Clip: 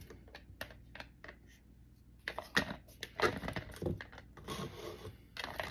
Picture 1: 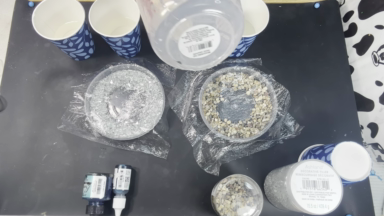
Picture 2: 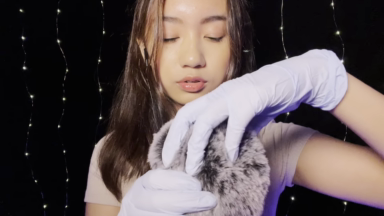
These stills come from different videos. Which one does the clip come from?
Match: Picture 1